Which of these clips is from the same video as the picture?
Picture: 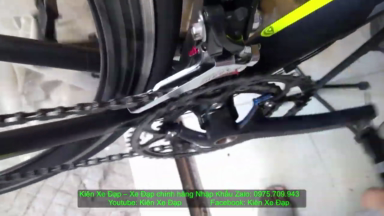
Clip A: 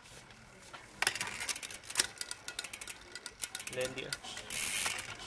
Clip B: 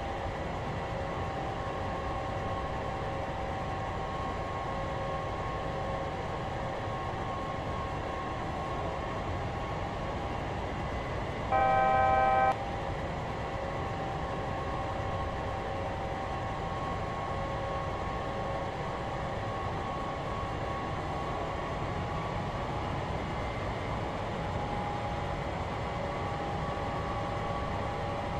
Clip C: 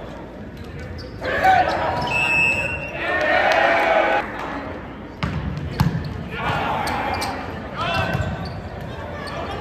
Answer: A